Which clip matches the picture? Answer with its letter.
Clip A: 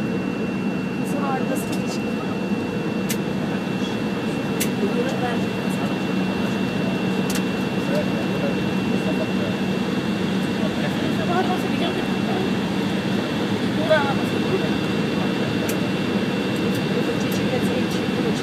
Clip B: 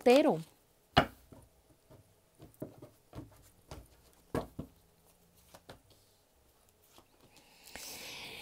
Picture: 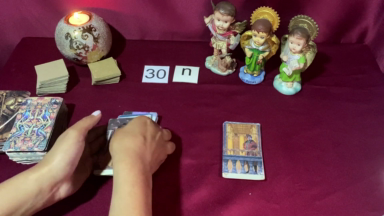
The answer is B